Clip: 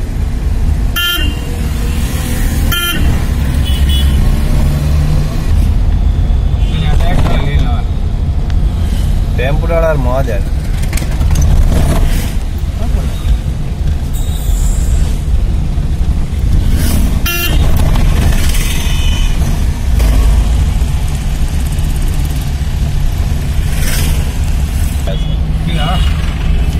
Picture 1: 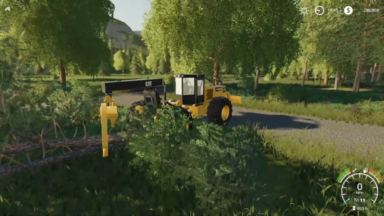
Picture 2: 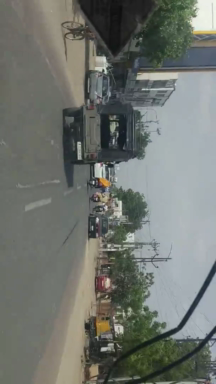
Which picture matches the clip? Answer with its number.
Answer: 2